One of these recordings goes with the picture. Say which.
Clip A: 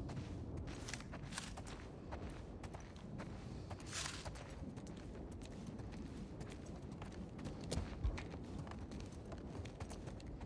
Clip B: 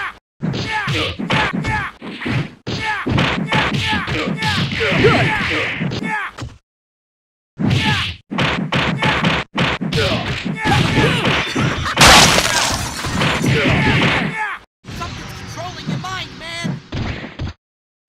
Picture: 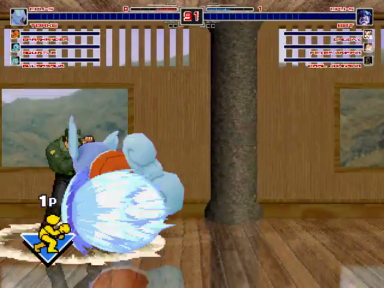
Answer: B